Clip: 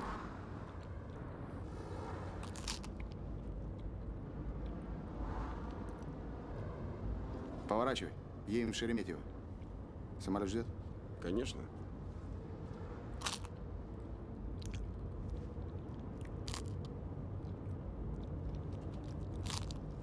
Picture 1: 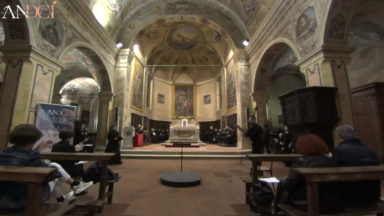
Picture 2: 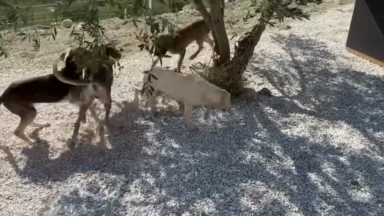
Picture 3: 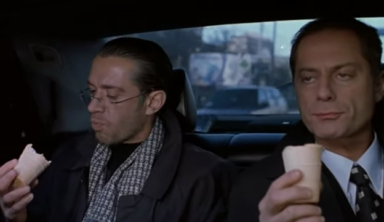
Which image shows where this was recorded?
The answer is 3